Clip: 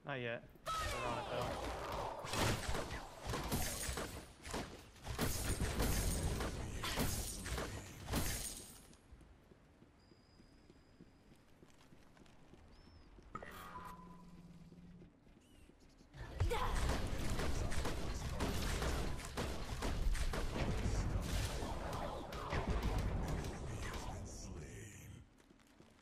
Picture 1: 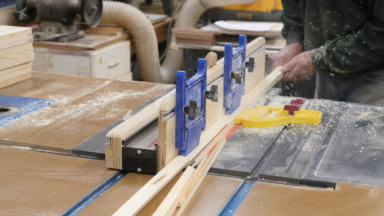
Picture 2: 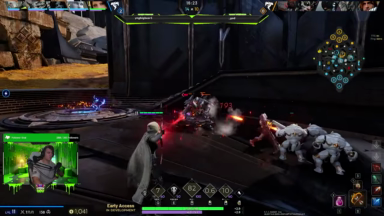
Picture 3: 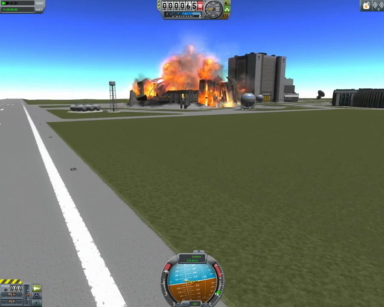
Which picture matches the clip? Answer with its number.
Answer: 2